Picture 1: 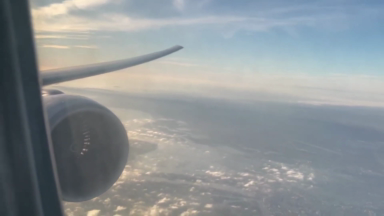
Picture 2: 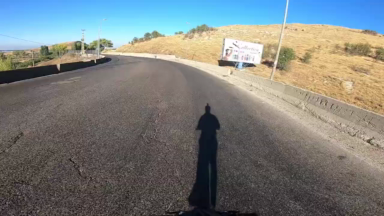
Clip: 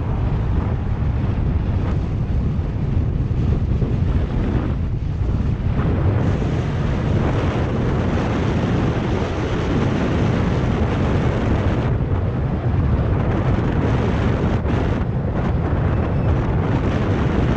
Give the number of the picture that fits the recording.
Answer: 2